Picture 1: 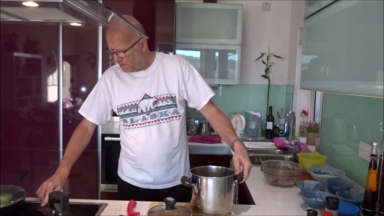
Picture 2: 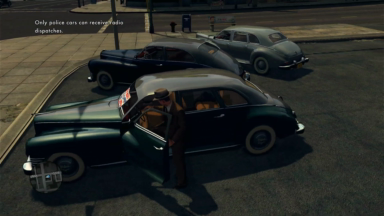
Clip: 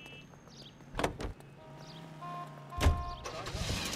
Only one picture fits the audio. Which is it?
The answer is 2